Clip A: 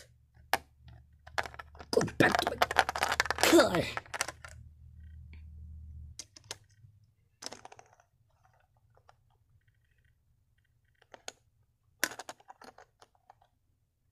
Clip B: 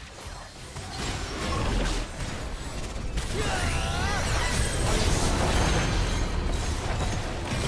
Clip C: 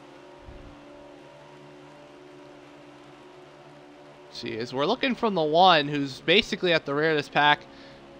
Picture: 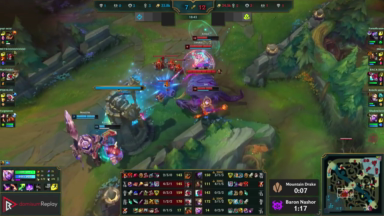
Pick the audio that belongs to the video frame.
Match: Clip B